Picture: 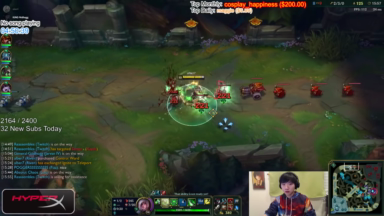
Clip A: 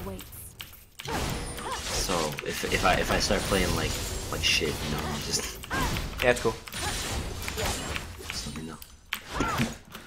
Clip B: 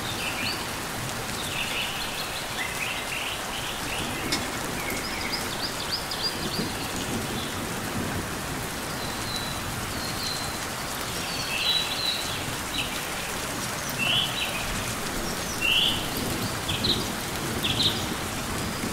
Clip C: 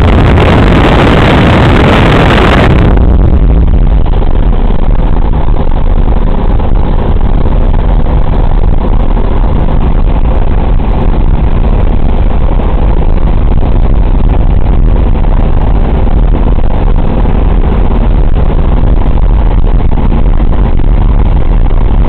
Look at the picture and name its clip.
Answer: A